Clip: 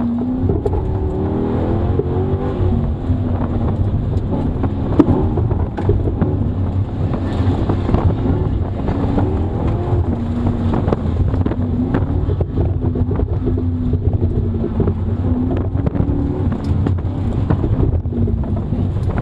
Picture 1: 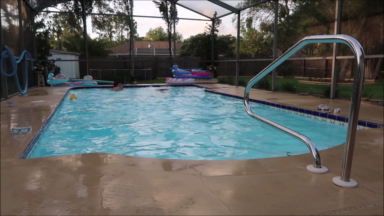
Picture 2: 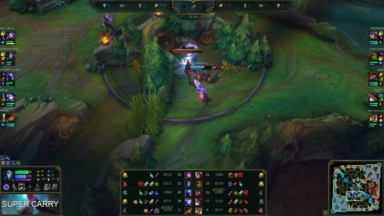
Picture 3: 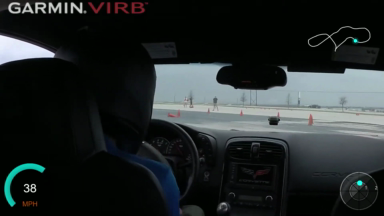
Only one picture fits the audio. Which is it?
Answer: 3